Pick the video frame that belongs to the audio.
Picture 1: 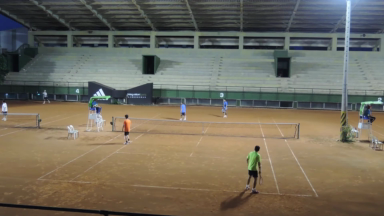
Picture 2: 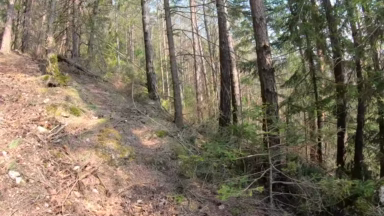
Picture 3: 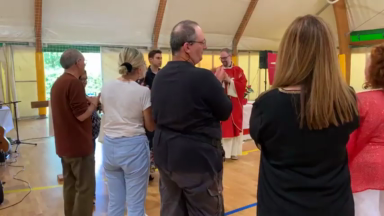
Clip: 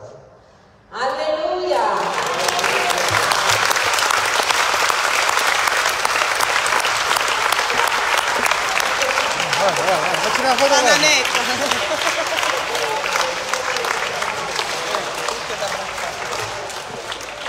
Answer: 3